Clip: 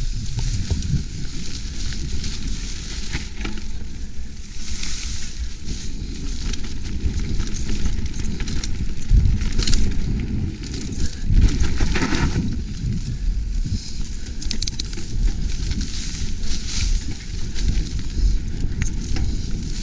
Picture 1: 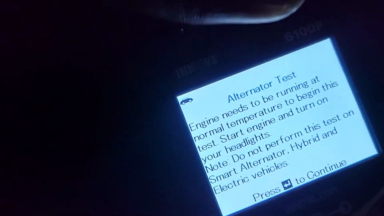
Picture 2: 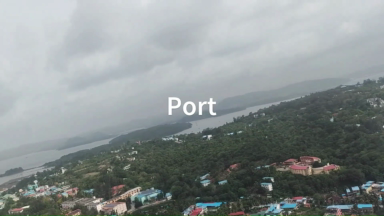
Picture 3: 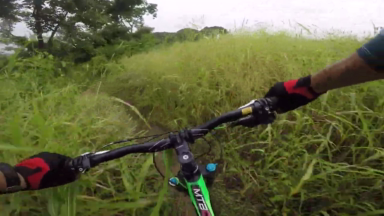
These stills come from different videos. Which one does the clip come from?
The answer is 3